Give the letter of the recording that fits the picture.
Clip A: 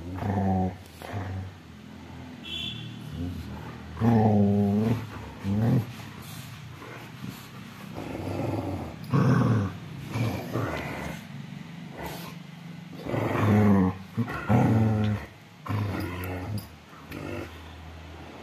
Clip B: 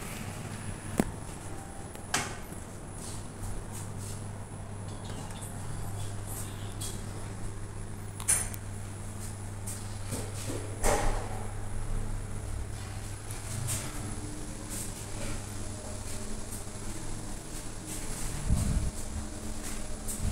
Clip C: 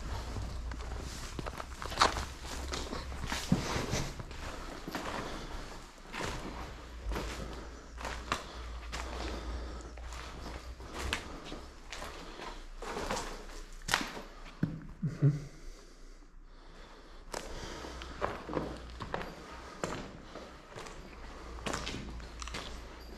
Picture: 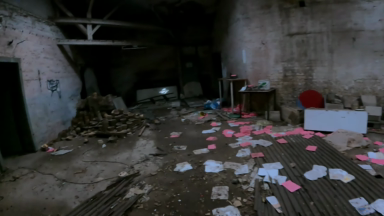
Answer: C